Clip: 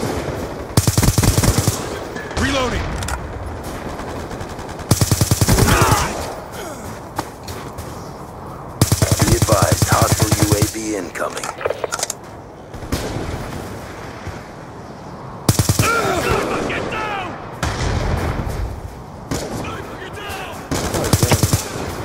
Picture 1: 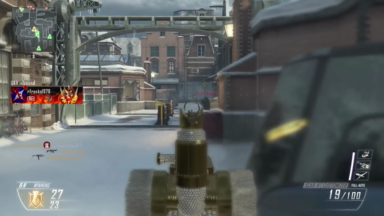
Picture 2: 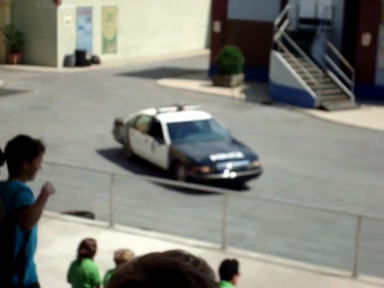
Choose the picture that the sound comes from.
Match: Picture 1